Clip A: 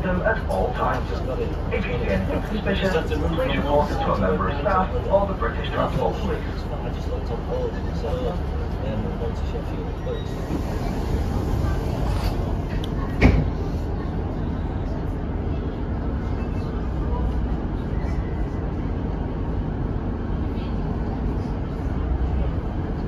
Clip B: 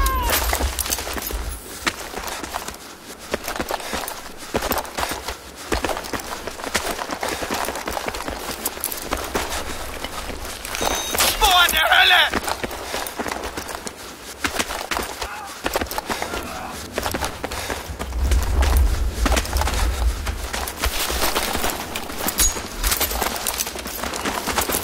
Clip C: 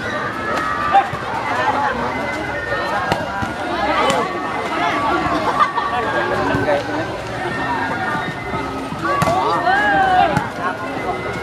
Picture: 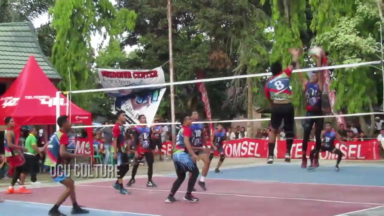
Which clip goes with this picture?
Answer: C